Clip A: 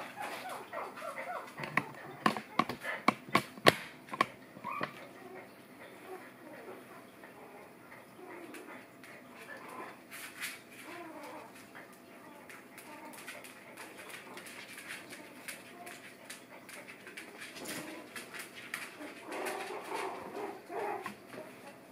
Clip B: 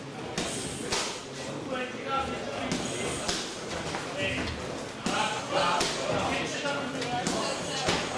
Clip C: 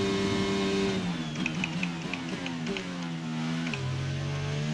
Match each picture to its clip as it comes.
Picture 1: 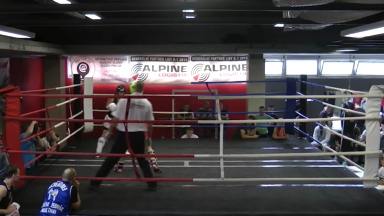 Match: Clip B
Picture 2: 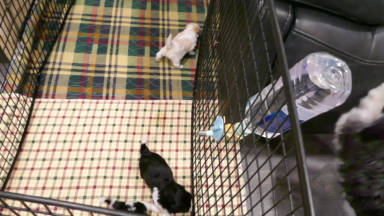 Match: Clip A